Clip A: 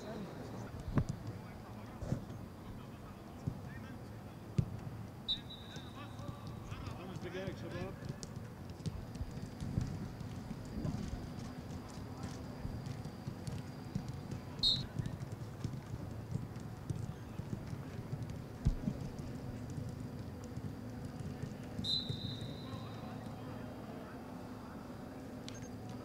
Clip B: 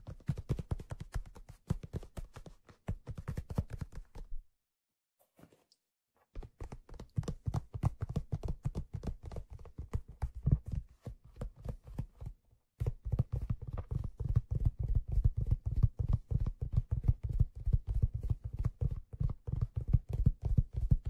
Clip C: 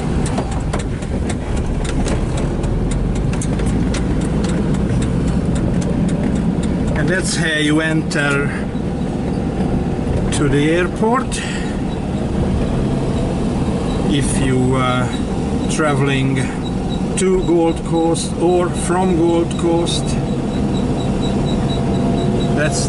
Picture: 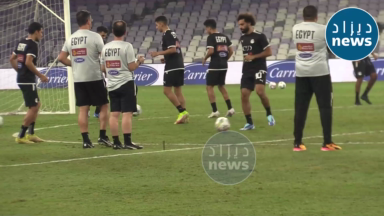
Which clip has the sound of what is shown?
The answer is A